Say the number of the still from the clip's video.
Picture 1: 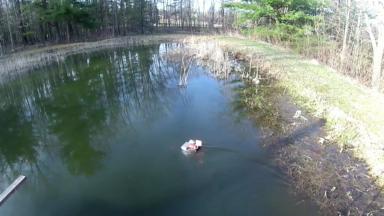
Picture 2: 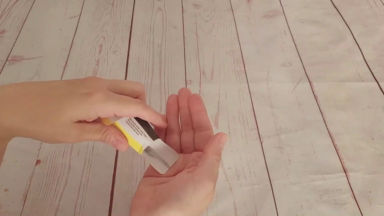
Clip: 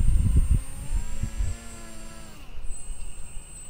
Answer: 1